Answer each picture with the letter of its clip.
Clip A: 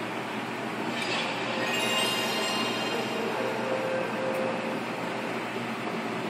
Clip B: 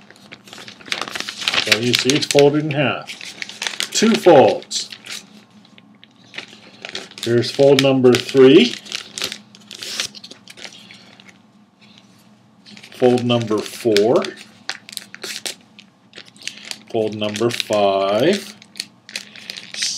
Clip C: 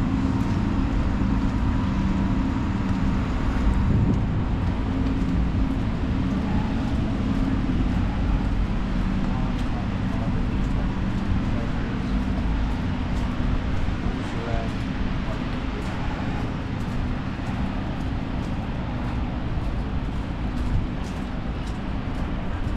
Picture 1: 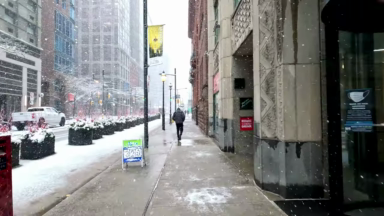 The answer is C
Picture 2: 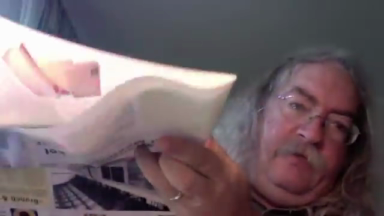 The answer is B